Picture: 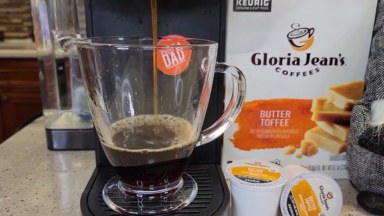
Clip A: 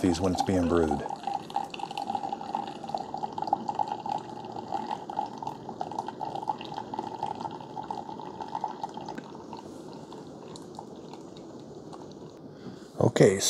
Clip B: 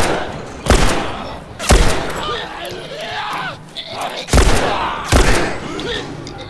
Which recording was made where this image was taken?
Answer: A